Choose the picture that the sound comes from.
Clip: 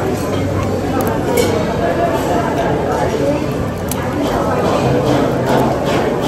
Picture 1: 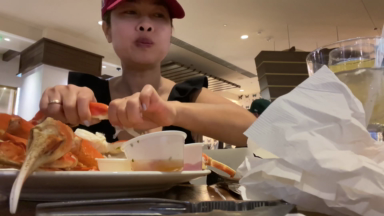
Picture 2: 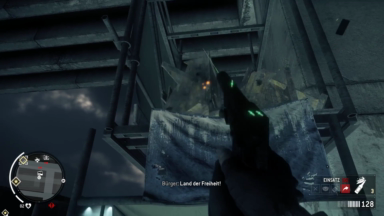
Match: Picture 1